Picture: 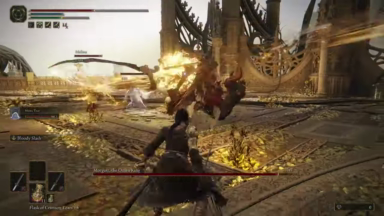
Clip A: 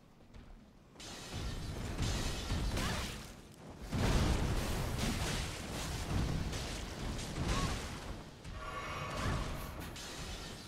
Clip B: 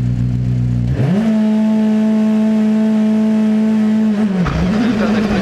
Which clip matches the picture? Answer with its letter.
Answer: A